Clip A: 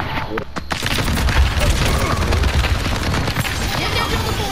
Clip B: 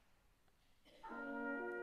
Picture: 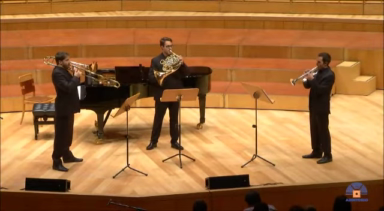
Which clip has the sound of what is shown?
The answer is B